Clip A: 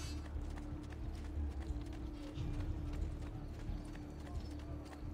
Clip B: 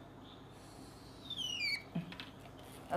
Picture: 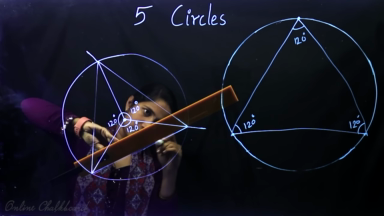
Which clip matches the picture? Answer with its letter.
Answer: B